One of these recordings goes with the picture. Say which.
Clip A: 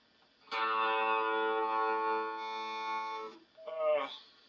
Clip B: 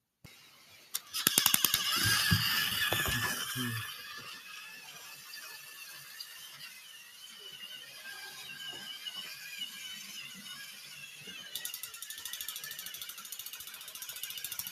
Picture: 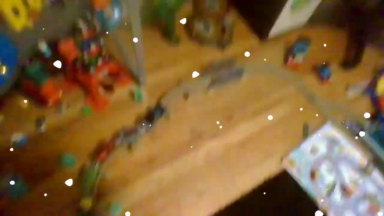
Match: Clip B